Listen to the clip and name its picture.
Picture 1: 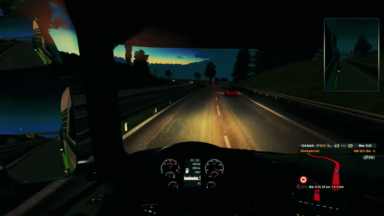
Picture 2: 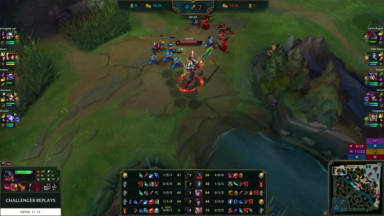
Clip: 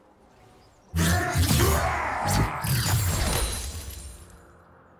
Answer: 2